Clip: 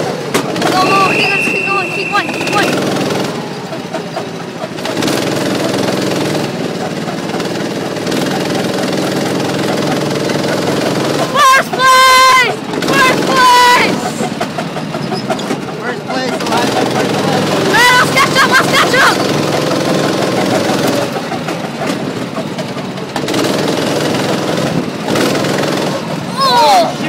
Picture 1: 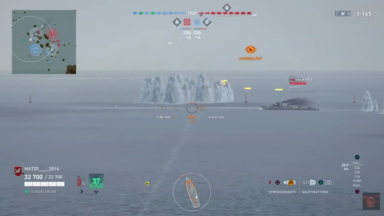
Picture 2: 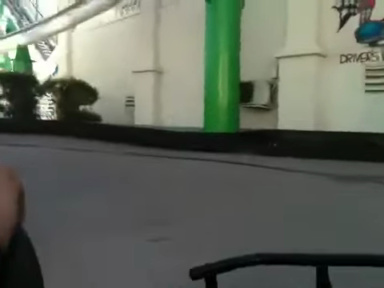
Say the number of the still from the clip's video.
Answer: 2